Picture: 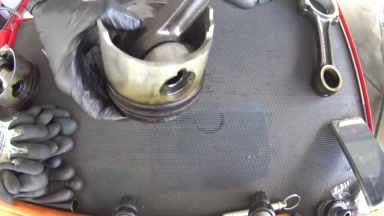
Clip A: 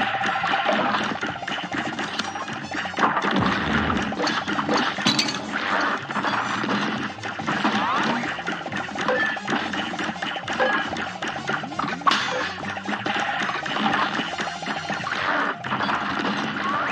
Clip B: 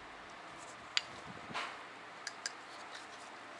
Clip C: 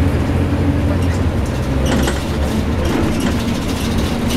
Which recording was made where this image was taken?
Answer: B